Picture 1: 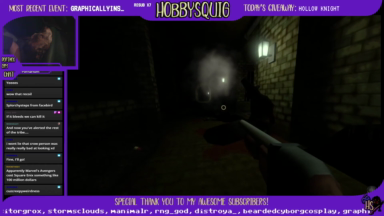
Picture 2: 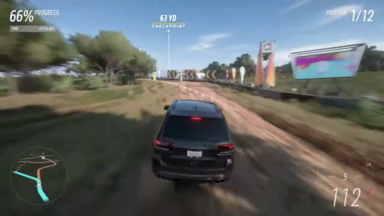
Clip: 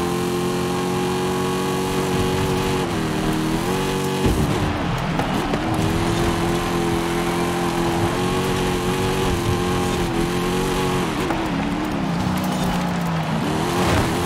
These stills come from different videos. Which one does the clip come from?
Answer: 2